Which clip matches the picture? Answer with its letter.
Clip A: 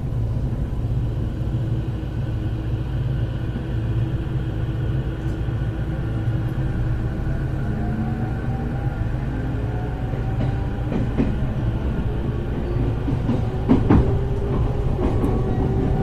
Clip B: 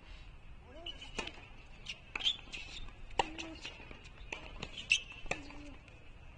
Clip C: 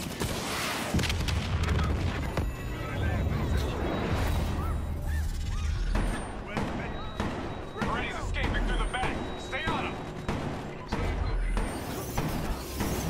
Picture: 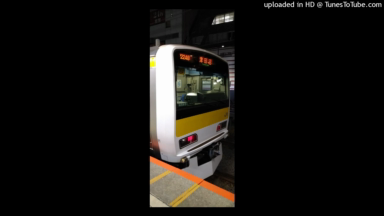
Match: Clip A